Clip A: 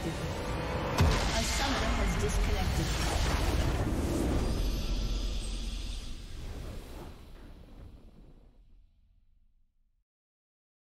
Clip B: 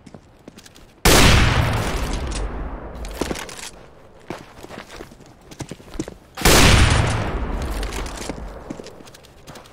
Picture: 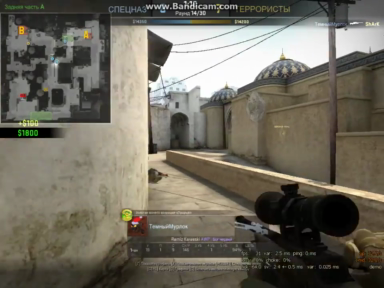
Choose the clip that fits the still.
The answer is B